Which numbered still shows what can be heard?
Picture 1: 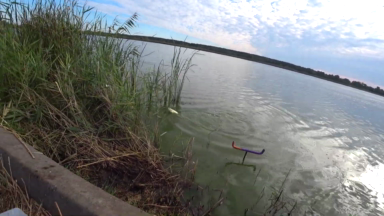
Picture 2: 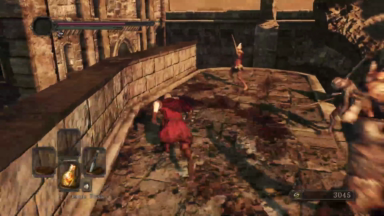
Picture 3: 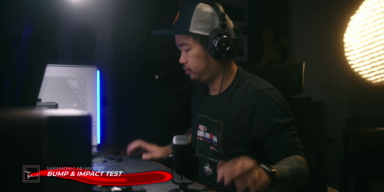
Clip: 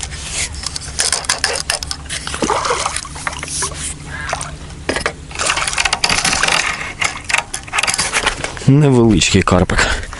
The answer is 1